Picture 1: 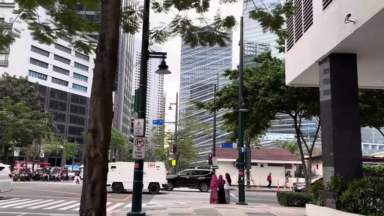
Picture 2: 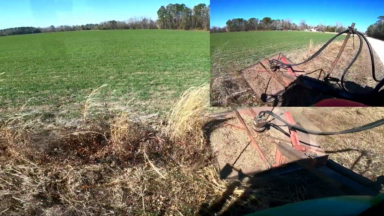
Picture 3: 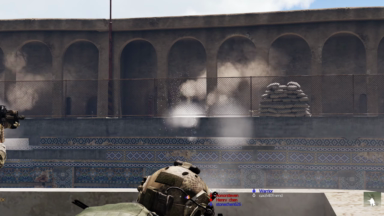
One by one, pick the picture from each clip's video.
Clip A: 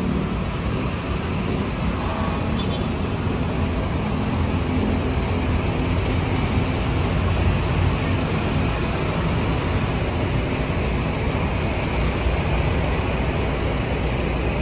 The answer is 1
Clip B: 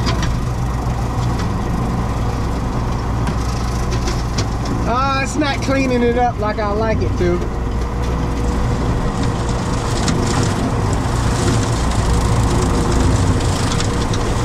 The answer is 2